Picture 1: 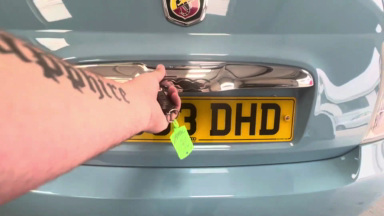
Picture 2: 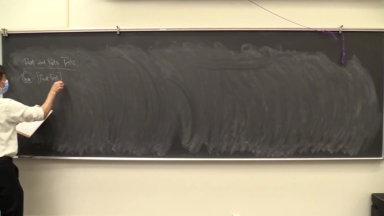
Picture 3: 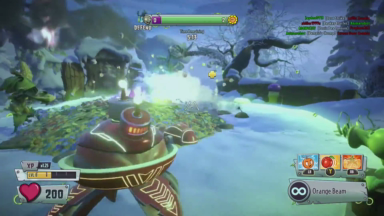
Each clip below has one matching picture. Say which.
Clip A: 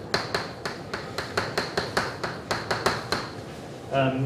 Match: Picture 2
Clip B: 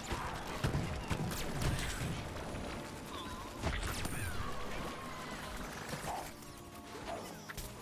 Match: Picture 3